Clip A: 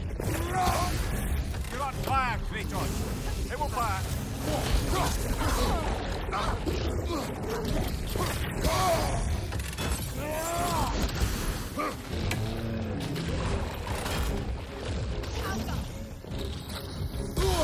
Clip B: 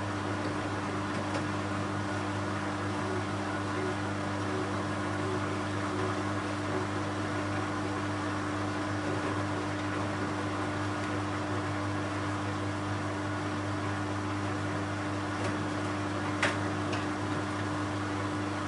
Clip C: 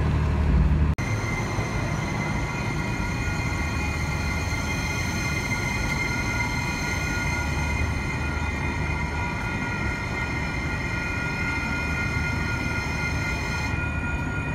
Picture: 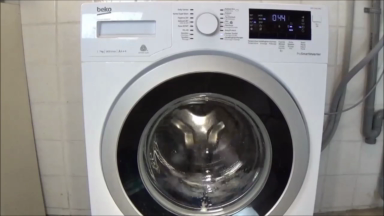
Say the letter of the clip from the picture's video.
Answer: B